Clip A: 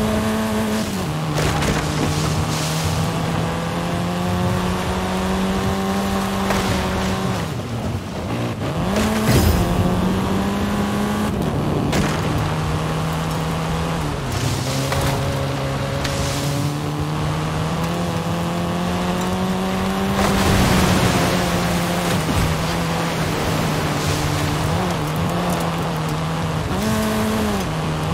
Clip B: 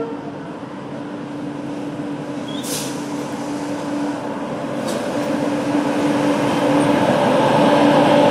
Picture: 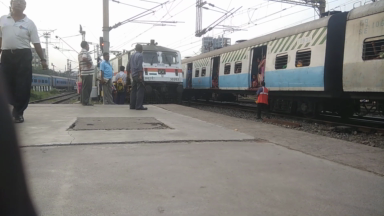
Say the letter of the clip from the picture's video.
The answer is B